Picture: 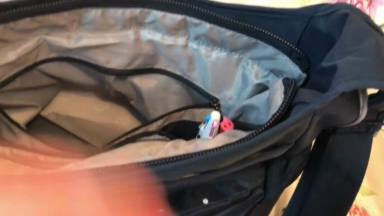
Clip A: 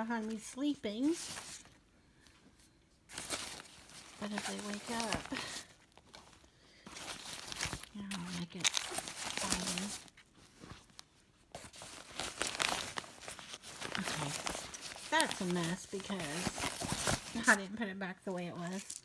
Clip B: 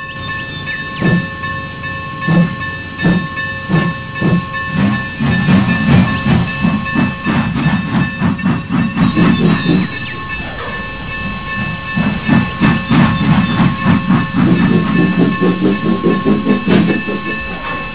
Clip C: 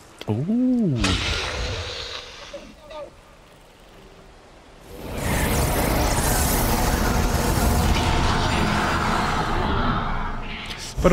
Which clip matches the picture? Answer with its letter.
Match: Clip A